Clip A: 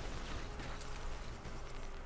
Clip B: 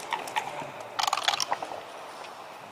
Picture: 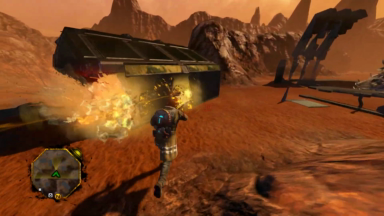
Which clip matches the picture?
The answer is A